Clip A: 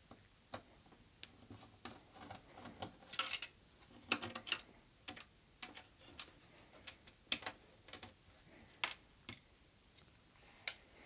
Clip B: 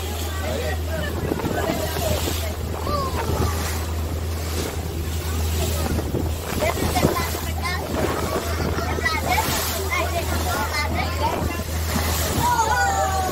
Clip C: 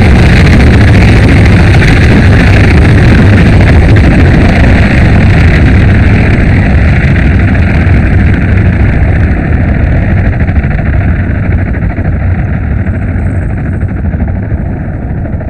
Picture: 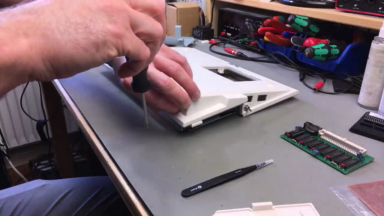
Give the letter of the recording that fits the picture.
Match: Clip A